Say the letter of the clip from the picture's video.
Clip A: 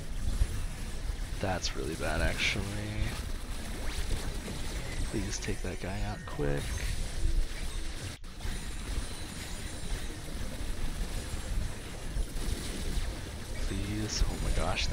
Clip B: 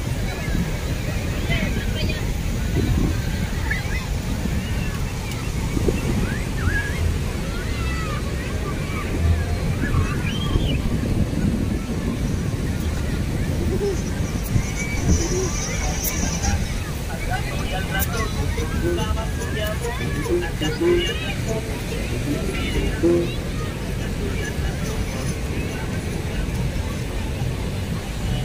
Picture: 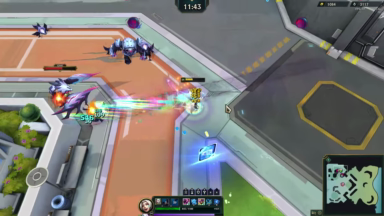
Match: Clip A